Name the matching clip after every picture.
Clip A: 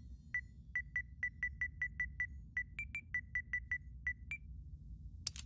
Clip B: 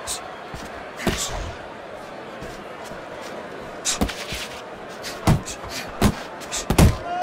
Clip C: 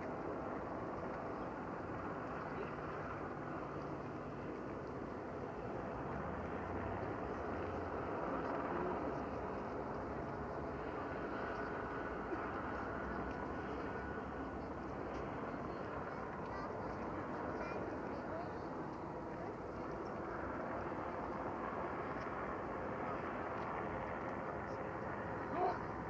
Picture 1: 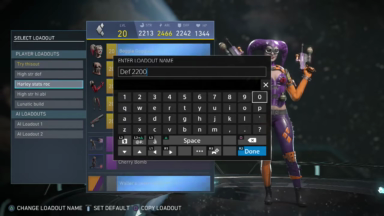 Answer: A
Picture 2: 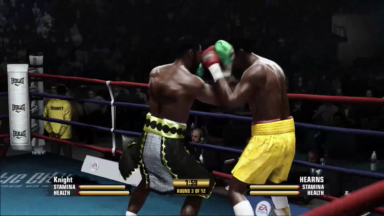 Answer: B